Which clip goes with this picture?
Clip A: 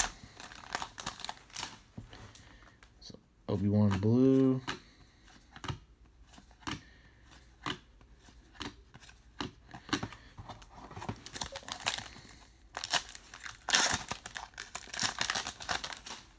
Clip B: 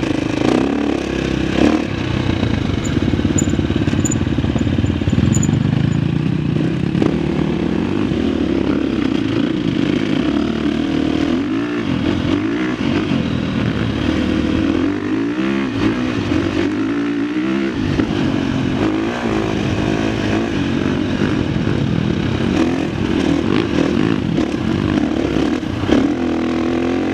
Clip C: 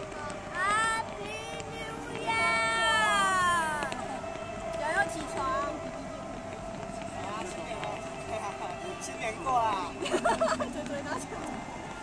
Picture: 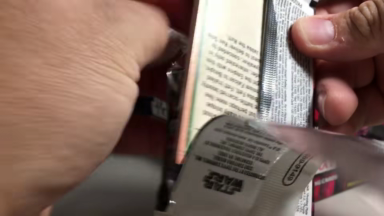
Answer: A